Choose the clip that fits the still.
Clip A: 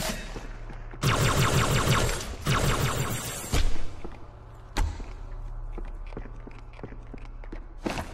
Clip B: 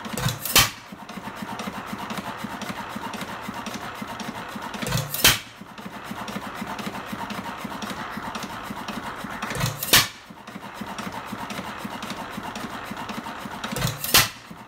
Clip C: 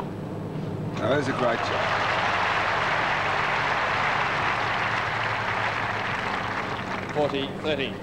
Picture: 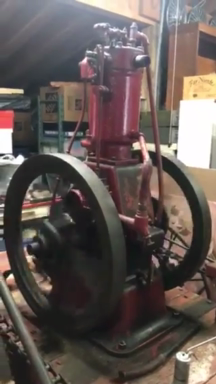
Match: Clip B